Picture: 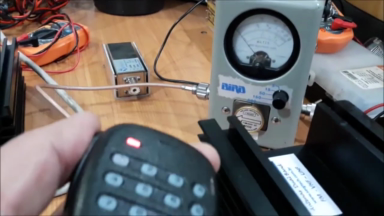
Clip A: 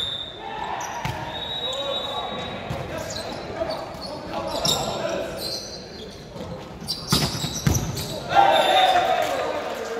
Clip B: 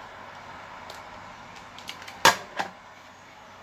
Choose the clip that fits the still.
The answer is B